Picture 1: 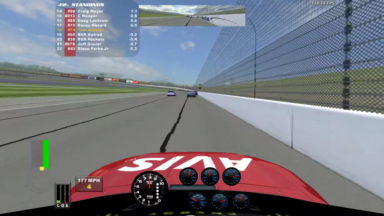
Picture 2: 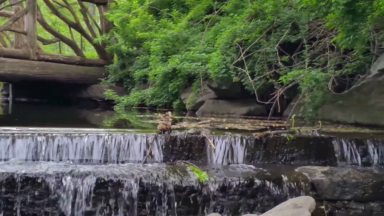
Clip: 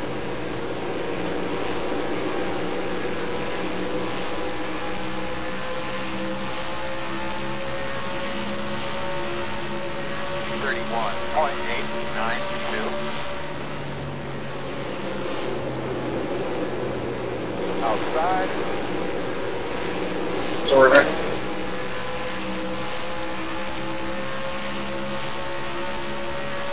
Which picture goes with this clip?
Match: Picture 1